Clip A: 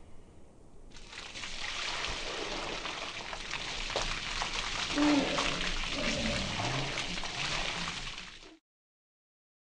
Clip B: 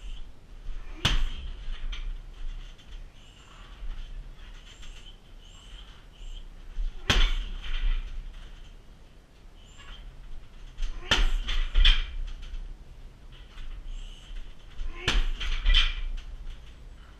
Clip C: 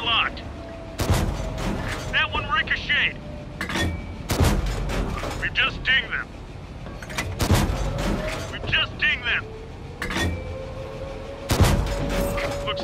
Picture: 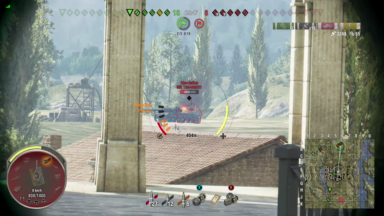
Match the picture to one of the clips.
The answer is C